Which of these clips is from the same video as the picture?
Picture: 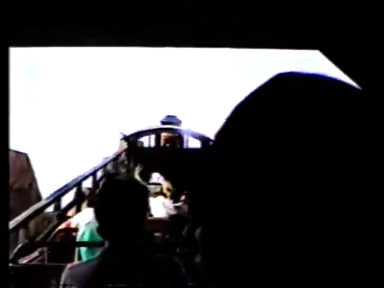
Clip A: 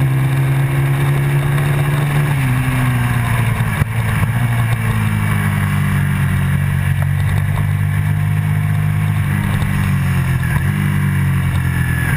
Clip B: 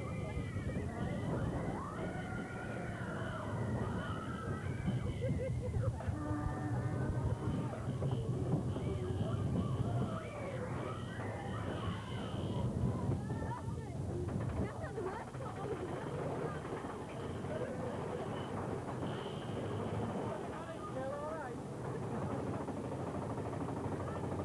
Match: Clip B